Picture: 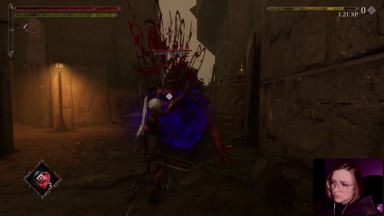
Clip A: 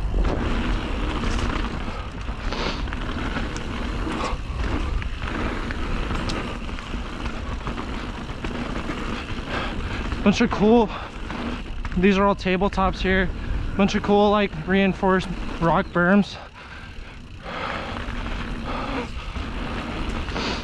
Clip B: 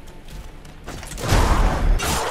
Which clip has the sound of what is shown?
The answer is B